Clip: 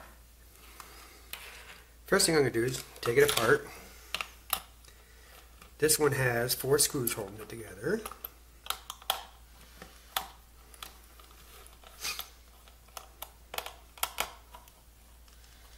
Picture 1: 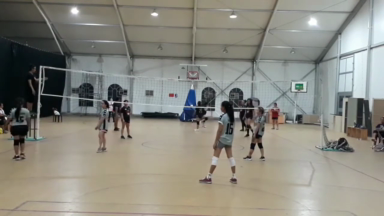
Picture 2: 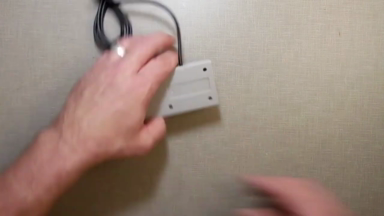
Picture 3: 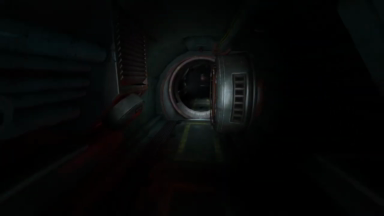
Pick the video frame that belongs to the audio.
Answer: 2